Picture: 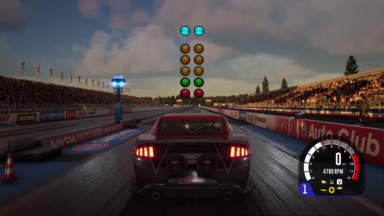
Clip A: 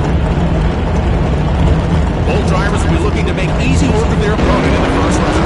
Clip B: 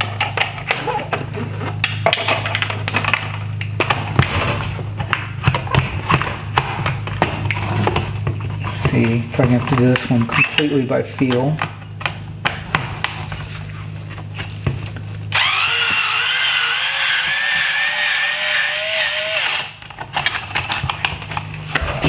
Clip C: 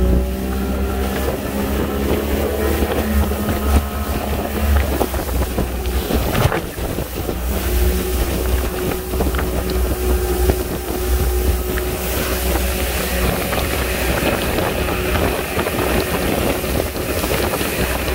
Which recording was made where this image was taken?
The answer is A